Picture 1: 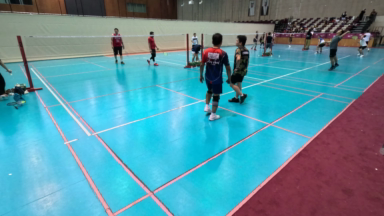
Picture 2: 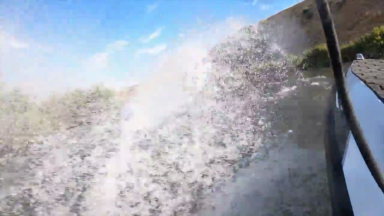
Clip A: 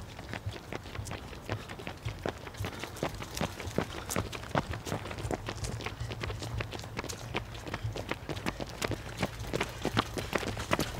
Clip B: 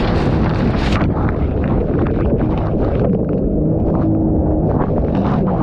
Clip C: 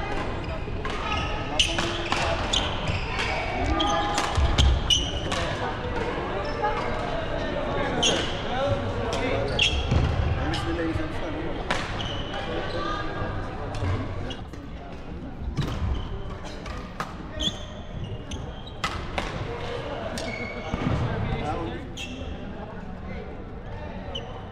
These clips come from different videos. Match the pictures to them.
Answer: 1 C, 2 B